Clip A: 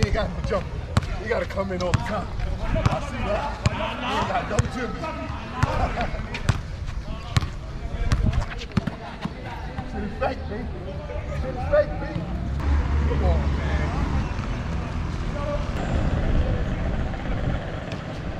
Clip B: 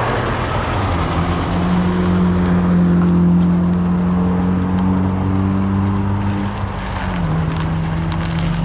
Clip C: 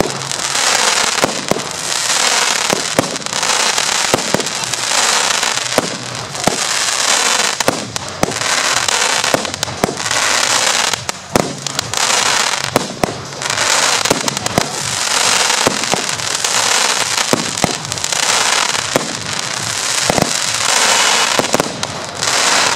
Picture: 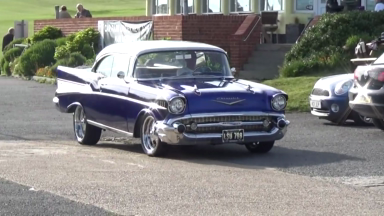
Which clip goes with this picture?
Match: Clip B